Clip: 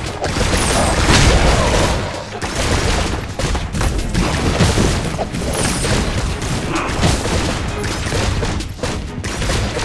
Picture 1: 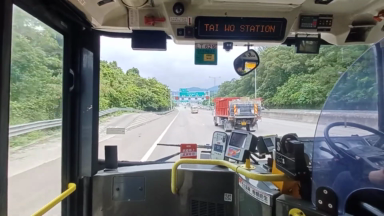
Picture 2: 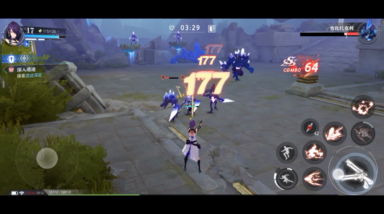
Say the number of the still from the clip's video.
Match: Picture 2